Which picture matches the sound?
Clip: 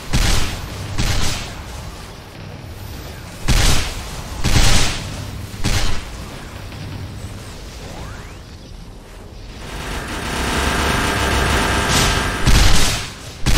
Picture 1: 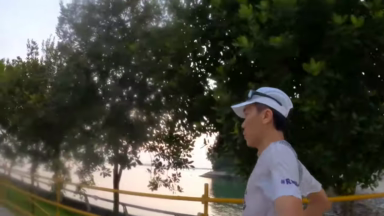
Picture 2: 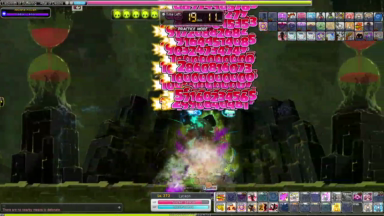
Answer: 2